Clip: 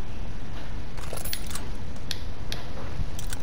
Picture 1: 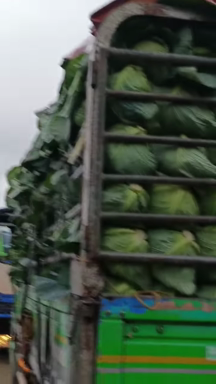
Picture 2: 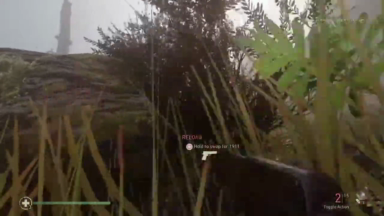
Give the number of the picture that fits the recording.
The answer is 2